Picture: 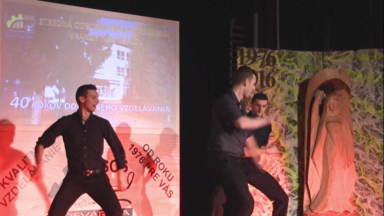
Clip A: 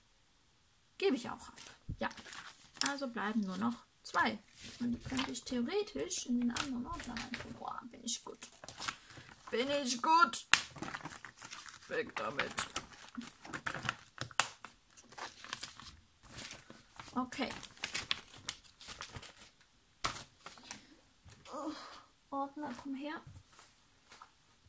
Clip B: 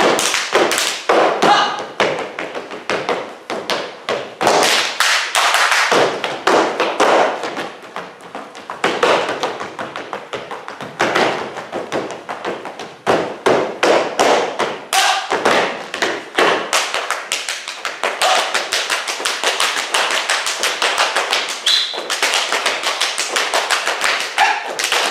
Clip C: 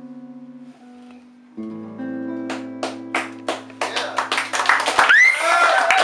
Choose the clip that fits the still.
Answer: B